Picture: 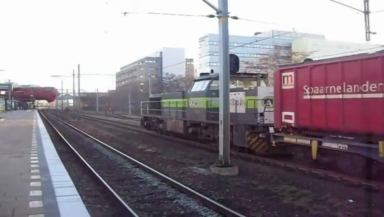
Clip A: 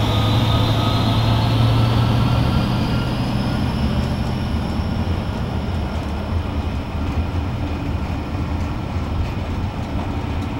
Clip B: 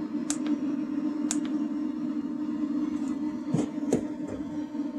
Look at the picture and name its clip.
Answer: A